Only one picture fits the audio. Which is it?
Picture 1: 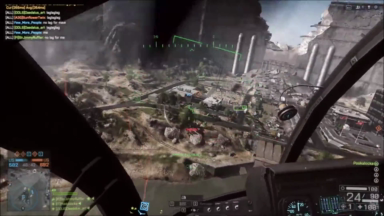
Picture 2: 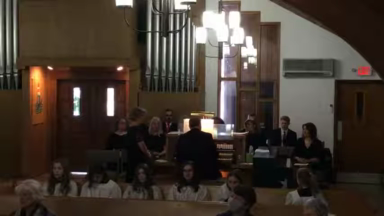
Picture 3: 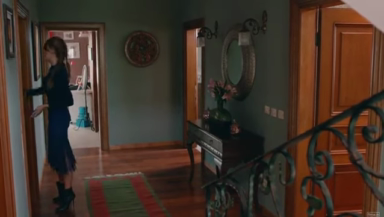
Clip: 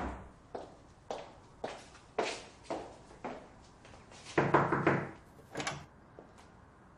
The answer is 3